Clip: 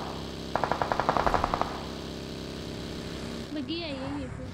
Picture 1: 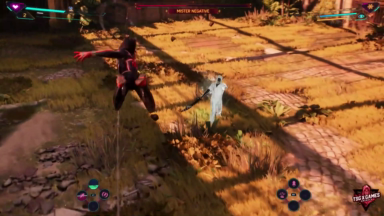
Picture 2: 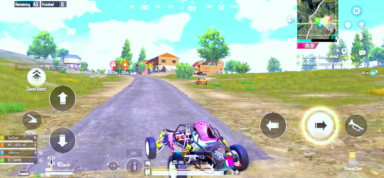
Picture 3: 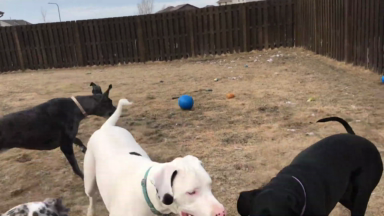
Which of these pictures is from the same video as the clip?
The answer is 2